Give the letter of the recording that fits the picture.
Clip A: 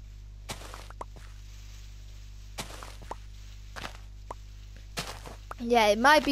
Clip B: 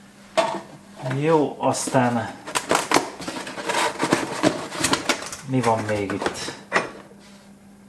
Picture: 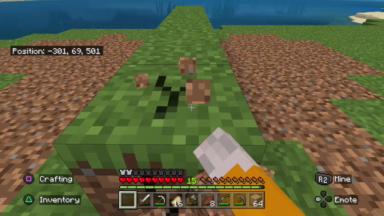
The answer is A